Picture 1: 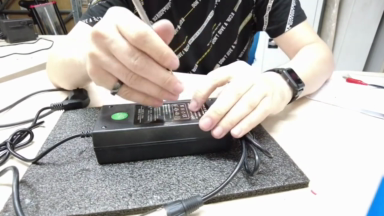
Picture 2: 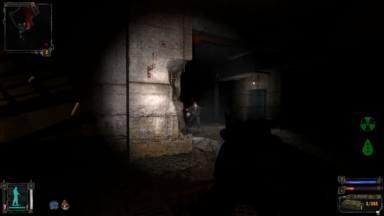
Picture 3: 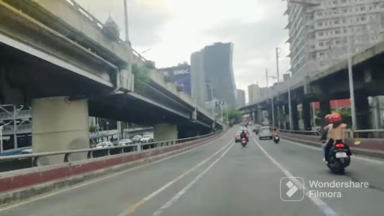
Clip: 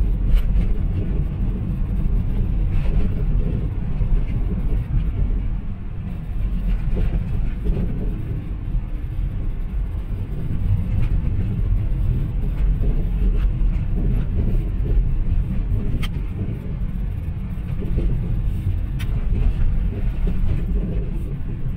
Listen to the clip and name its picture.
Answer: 3